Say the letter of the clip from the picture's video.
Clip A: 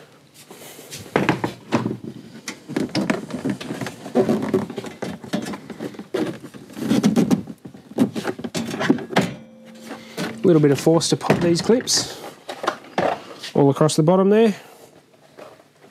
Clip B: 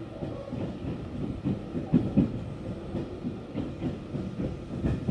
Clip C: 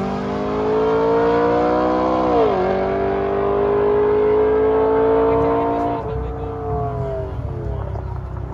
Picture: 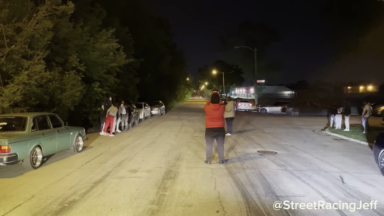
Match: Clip C